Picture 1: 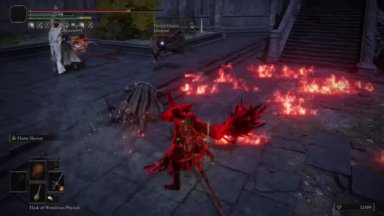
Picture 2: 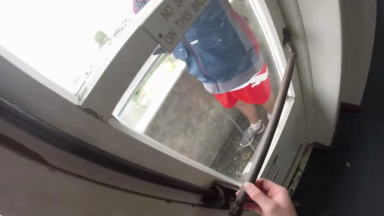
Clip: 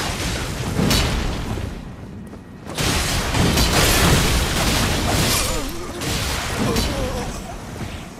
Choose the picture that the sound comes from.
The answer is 1